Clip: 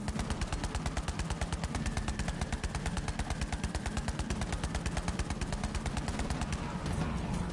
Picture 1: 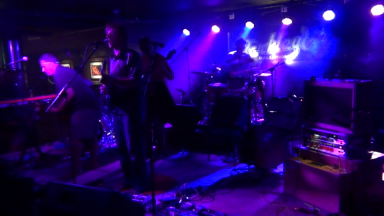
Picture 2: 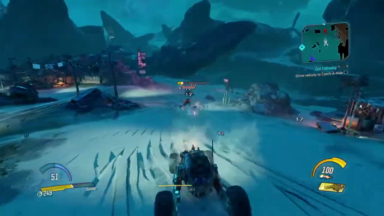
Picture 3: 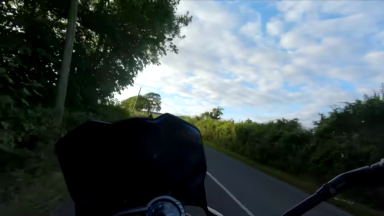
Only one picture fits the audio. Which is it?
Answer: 2